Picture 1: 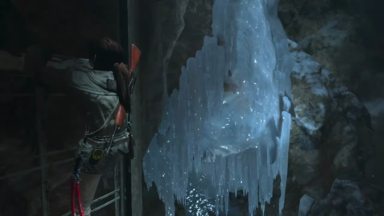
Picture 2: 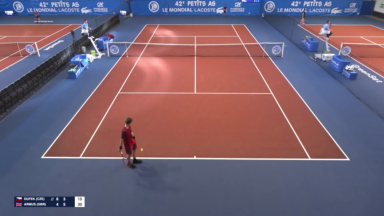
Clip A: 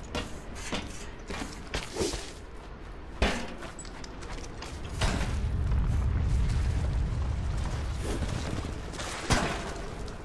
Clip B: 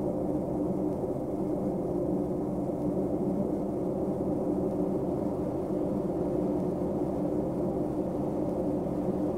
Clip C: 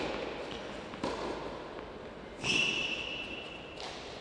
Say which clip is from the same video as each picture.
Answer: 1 A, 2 C